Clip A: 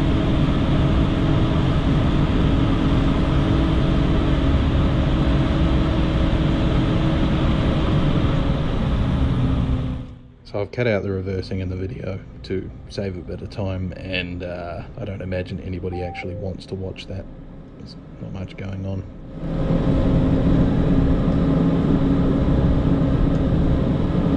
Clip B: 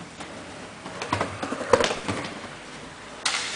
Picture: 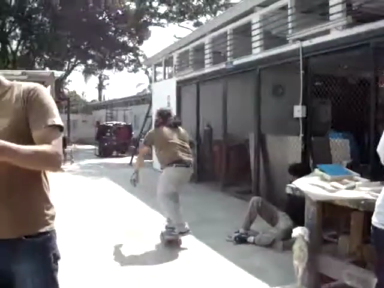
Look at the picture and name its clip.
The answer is B